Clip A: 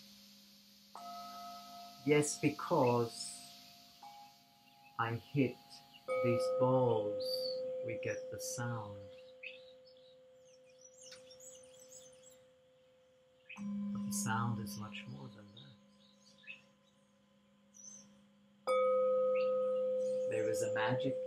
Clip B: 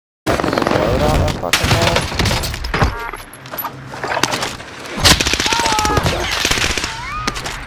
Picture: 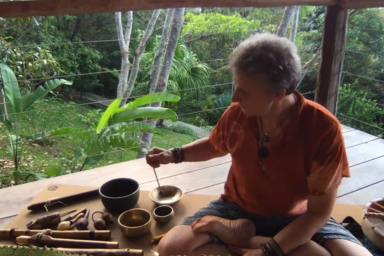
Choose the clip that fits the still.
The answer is A